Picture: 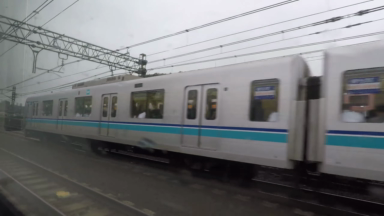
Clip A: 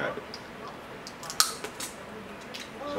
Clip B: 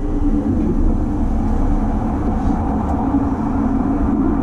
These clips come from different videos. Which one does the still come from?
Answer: B